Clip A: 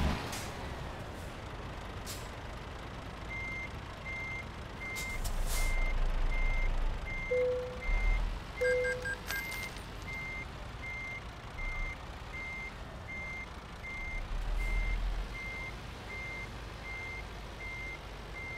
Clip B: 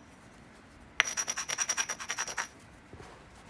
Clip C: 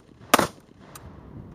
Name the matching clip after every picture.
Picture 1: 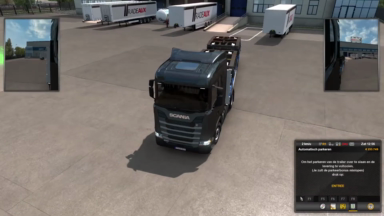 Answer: A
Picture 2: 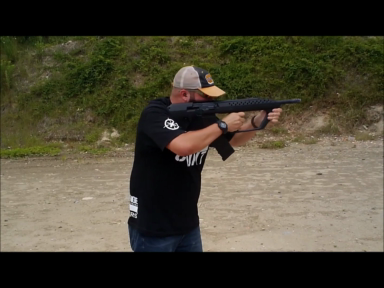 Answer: C